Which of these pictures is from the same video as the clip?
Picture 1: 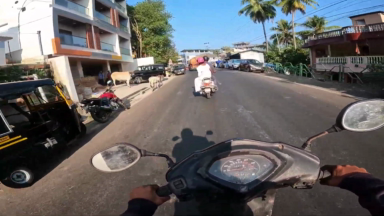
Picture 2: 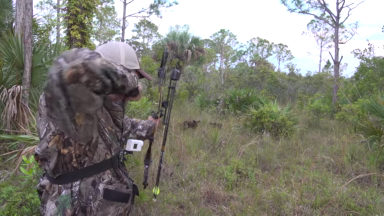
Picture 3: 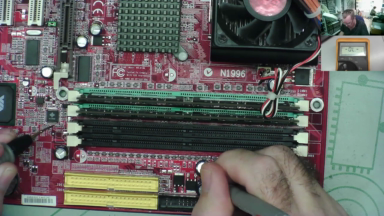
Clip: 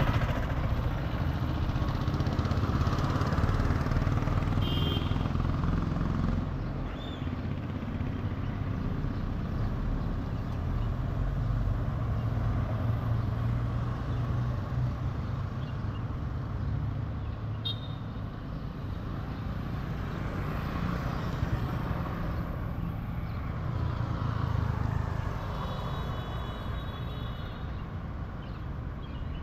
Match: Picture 1